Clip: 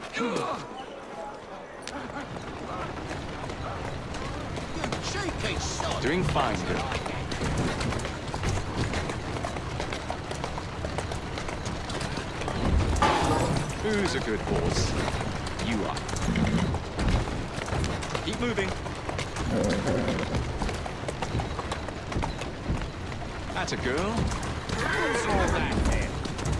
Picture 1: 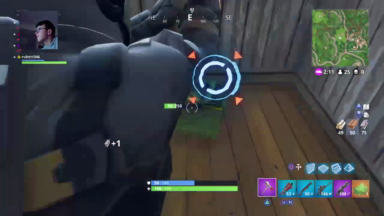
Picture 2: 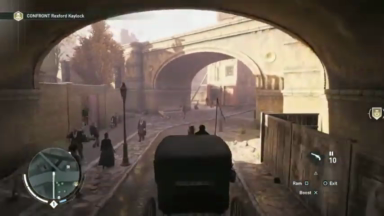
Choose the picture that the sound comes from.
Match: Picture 2